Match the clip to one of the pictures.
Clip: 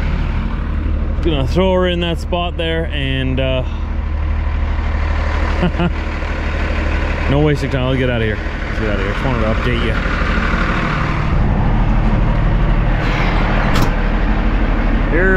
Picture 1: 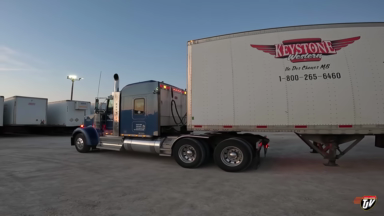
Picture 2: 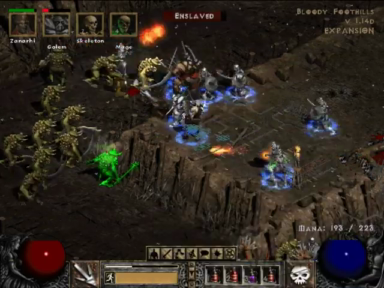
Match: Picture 1